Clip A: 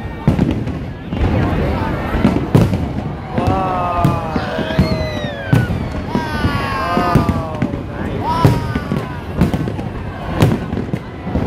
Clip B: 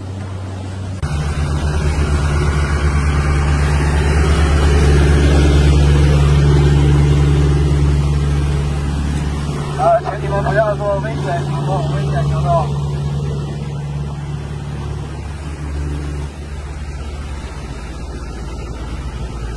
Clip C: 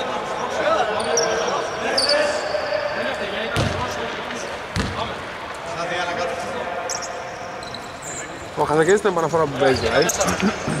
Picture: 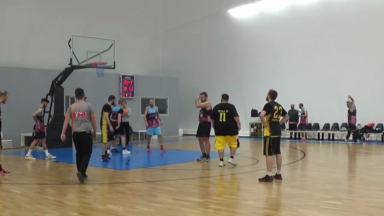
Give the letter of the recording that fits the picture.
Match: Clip C